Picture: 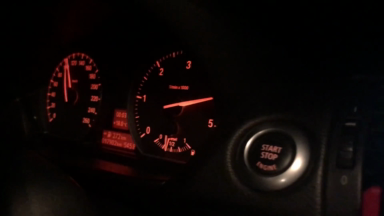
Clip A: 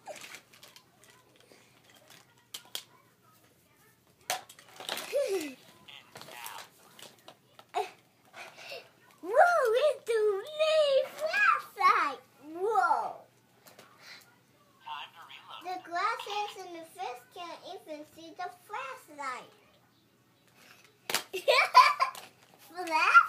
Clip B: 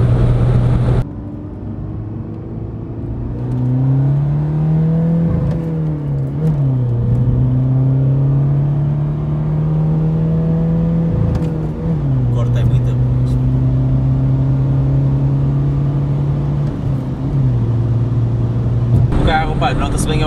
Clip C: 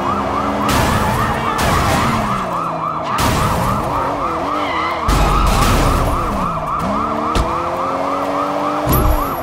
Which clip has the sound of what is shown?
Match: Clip B